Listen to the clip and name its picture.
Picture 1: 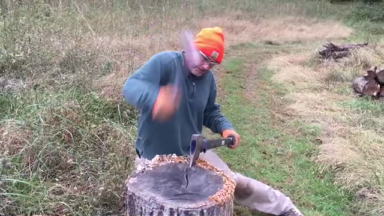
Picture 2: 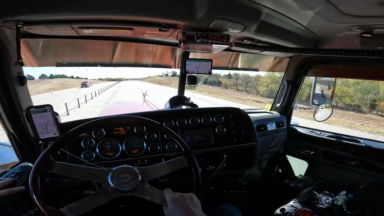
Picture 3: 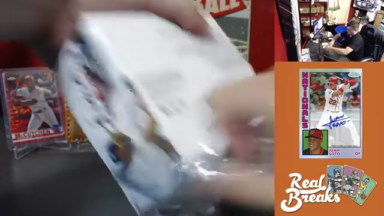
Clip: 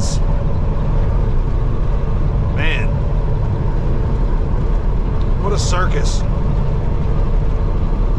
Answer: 2